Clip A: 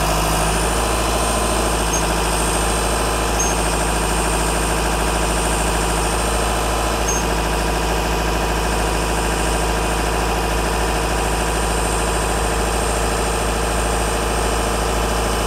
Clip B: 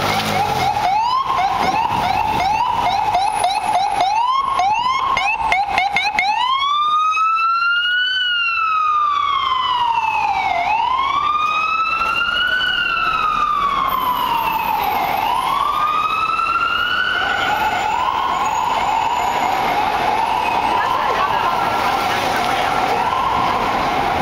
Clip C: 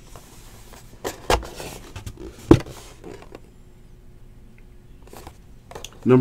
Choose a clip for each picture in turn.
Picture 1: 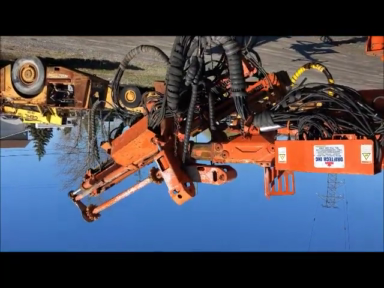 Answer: A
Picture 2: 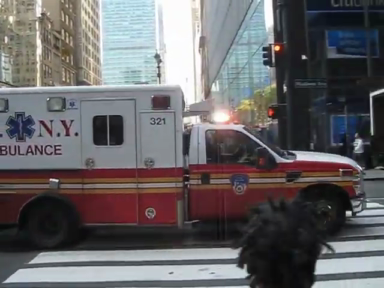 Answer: B